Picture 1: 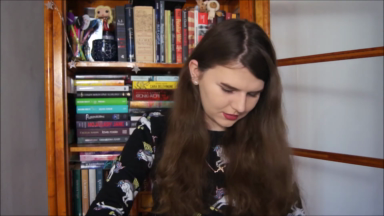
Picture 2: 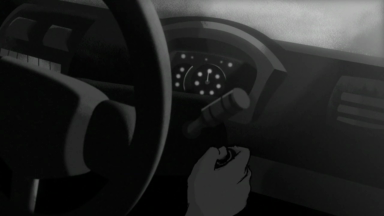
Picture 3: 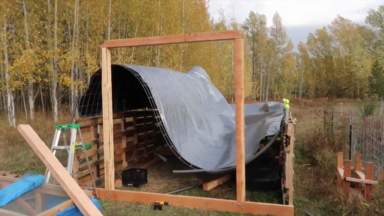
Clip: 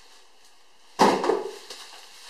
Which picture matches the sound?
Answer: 1